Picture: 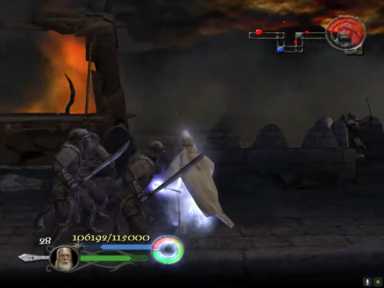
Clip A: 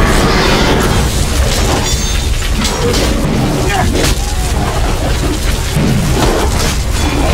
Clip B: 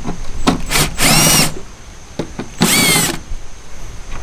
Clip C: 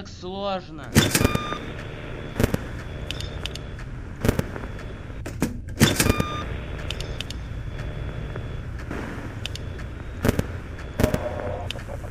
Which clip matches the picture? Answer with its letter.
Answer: A